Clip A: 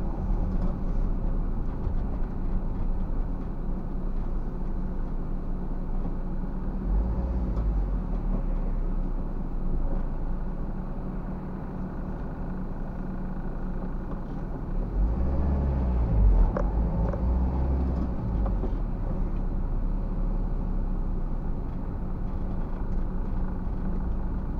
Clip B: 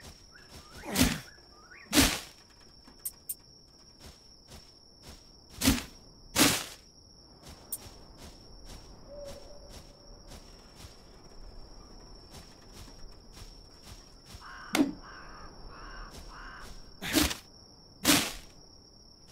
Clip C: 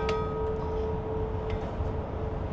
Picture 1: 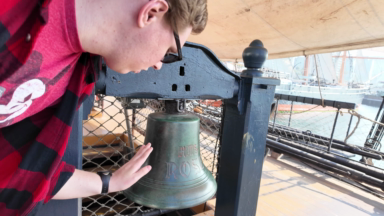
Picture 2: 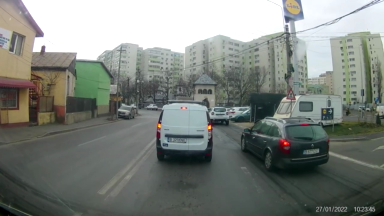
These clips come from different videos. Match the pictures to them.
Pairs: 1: C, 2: A